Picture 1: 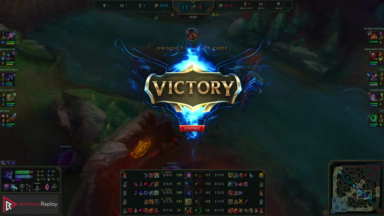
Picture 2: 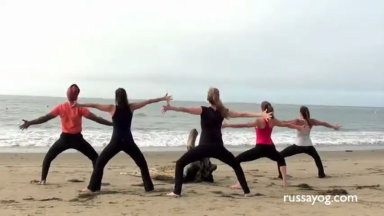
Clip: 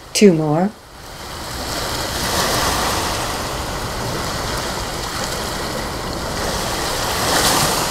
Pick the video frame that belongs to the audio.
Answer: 2